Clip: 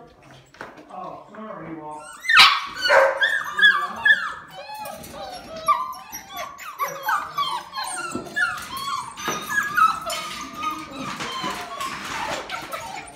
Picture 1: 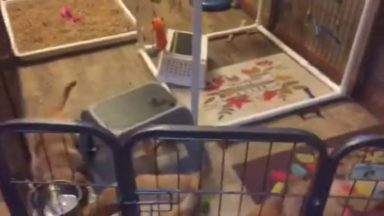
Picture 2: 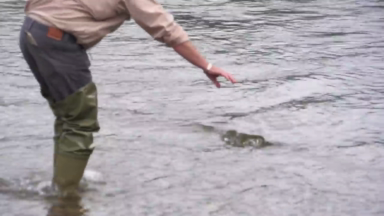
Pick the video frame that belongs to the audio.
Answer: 1